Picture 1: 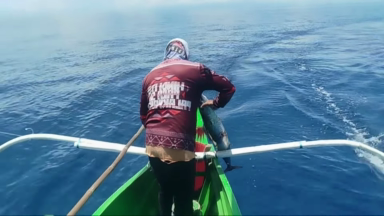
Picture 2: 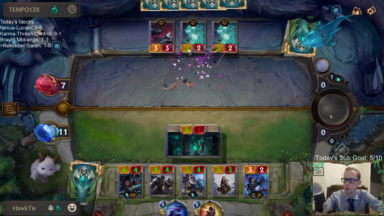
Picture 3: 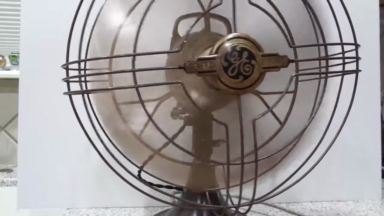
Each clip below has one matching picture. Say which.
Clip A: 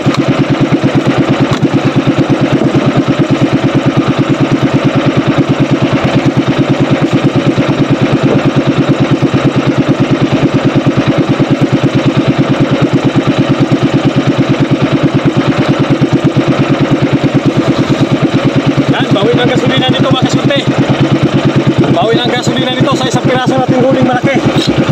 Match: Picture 1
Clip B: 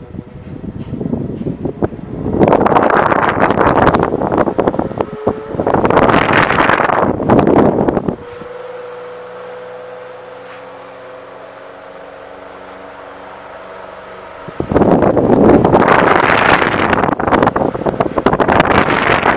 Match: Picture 3